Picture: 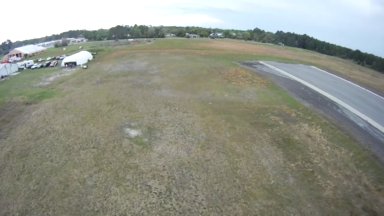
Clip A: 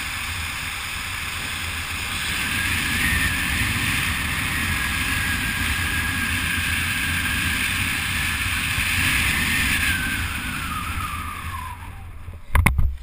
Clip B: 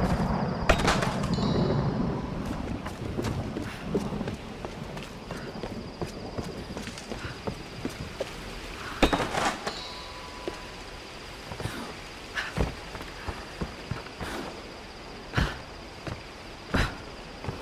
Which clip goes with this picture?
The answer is A